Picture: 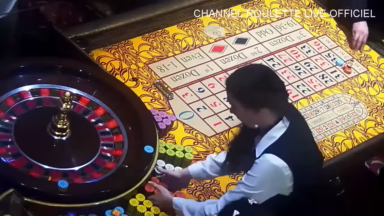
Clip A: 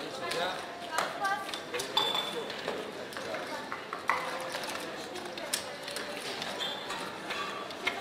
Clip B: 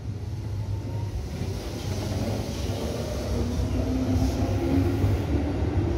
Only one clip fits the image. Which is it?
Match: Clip A